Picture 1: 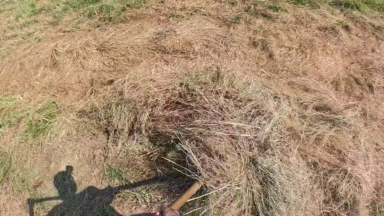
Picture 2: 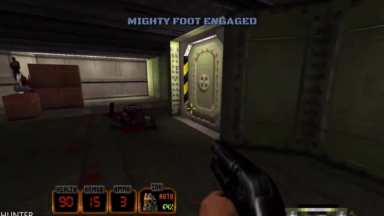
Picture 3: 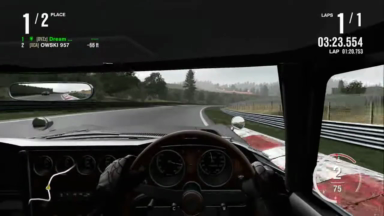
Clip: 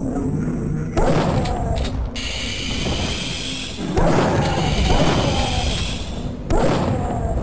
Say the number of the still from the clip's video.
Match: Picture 2